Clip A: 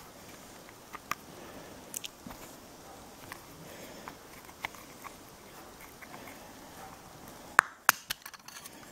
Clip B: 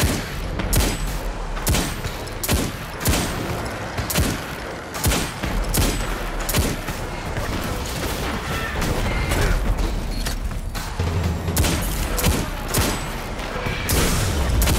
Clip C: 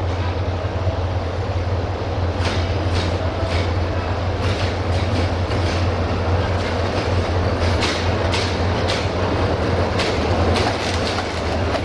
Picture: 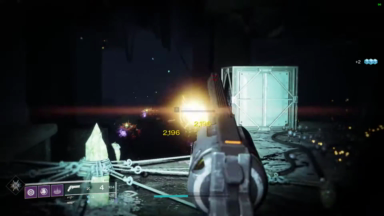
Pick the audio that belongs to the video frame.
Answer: B